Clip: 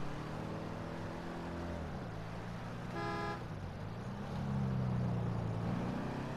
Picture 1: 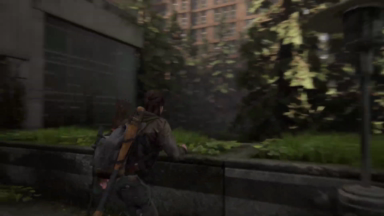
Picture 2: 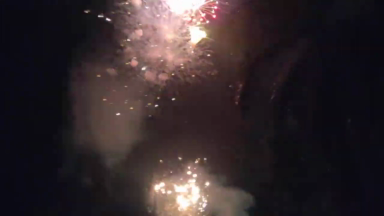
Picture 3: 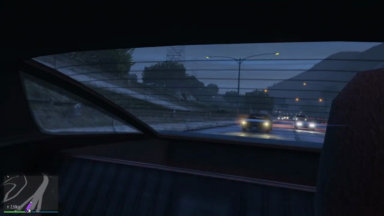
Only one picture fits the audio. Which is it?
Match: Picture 3